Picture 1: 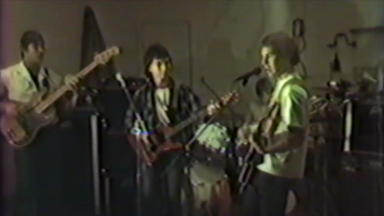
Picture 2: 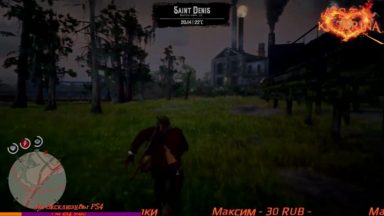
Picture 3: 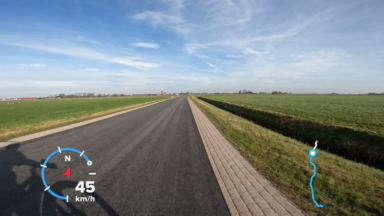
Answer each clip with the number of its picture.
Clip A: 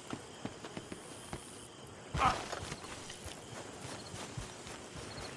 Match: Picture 2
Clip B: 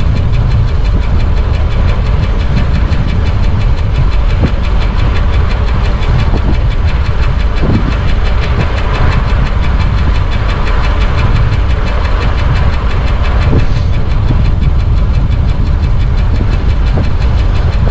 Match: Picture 3